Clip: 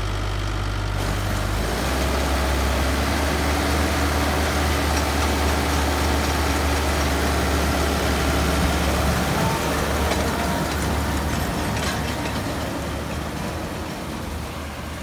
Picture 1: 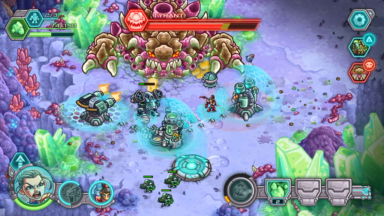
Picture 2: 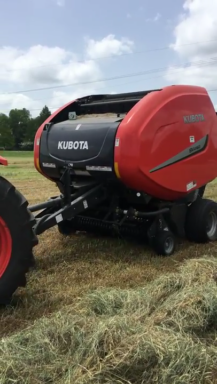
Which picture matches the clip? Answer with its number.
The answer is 2